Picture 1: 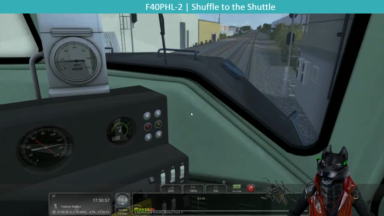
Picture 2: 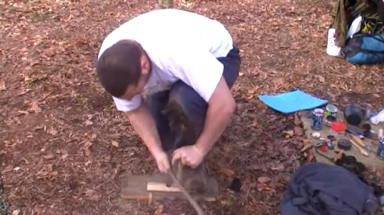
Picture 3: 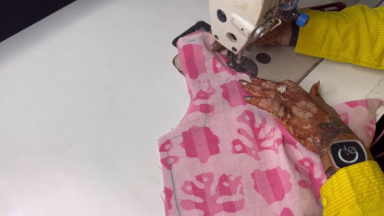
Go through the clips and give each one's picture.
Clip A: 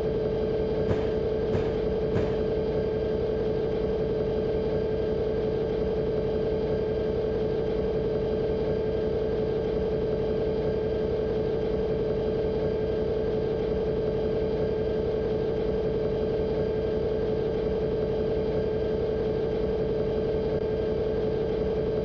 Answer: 1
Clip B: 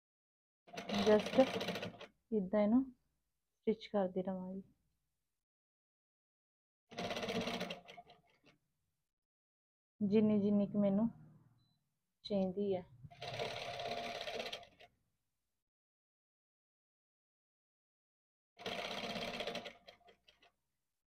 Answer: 3